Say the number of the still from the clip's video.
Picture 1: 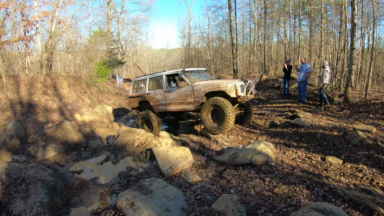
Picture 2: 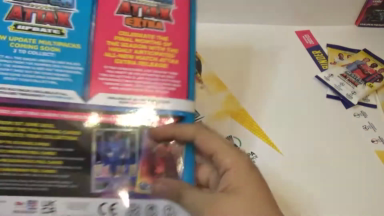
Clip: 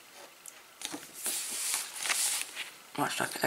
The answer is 2